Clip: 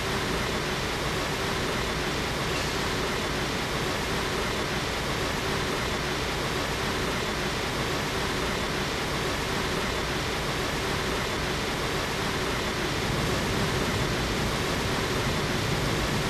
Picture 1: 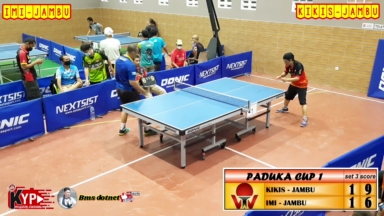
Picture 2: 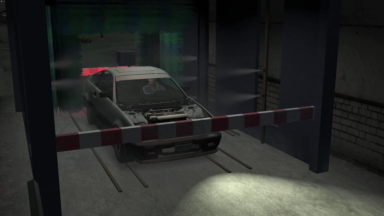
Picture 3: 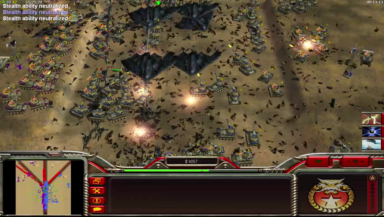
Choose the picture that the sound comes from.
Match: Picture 2